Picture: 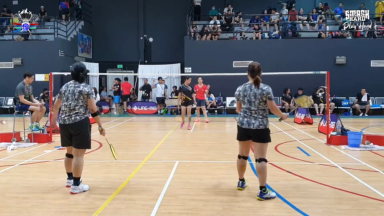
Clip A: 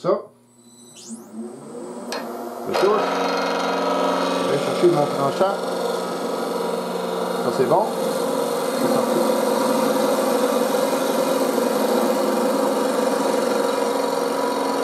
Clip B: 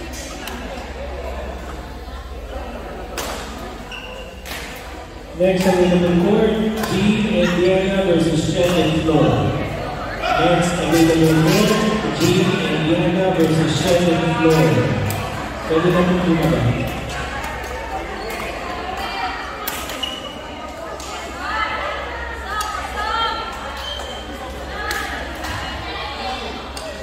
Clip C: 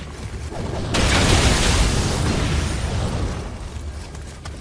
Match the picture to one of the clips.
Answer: B